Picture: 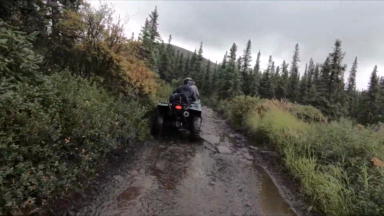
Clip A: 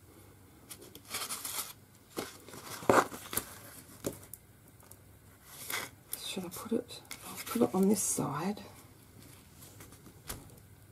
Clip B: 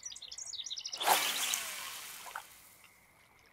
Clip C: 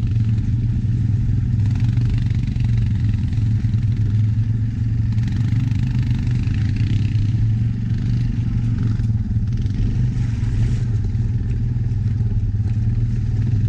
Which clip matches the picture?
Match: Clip C